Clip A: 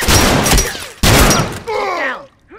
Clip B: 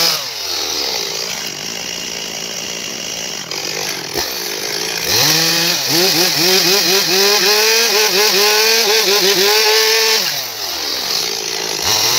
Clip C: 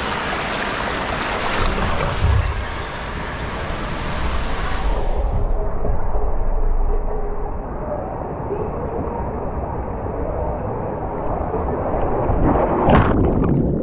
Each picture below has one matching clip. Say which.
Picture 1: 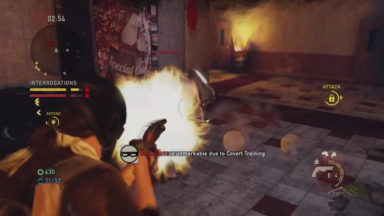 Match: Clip A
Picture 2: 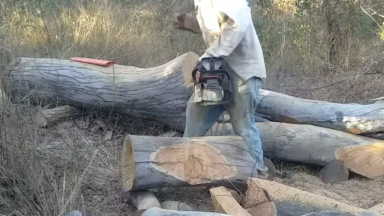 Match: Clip B